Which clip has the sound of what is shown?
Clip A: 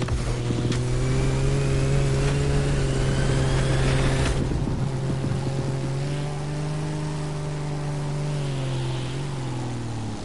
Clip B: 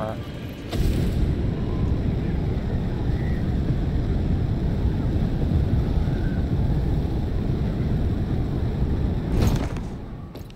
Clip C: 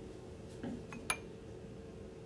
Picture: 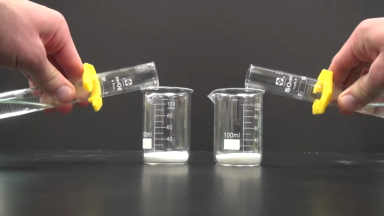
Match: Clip C